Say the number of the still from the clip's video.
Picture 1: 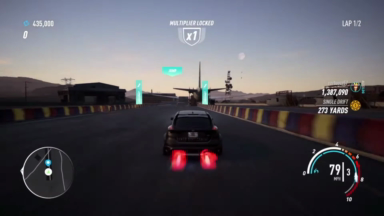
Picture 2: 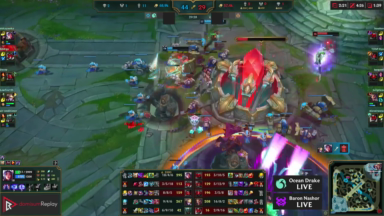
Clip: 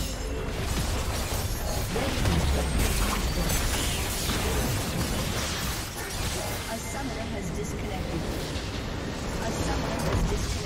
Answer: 2